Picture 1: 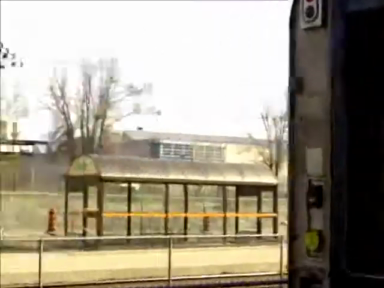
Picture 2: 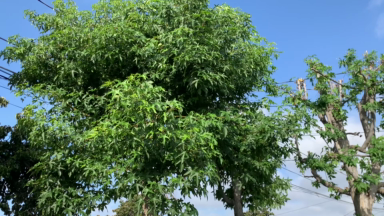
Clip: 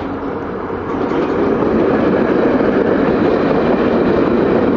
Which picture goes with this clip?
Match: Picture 1